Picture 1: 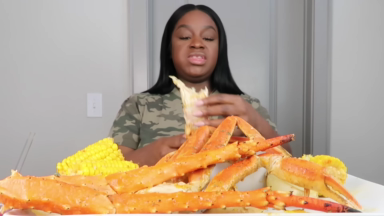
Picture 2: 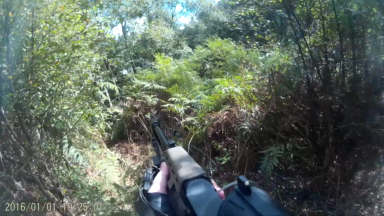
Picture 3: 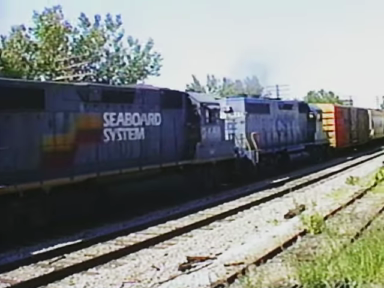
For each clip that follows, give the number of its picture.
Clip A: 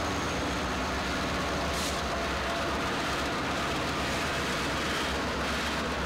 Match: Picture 3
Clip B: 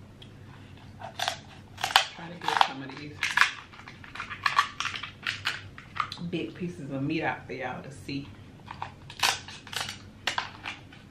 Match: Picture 1